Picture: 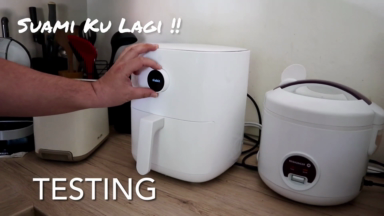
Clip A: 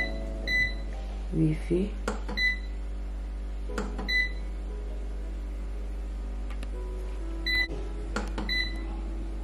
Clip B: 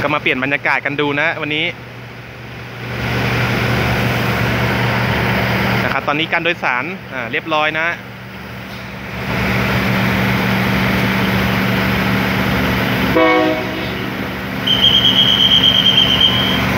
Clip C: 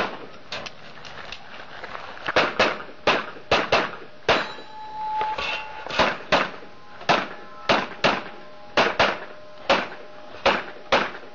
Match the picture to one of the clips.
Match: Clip A